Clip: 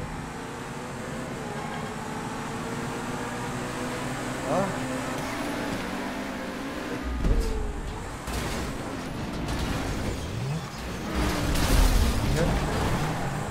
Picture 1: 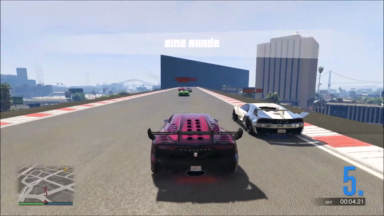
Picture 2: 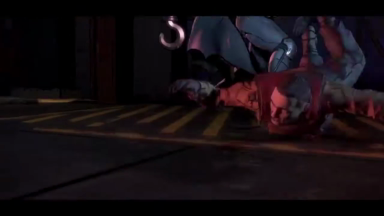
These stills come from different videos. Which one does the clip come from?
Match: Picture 1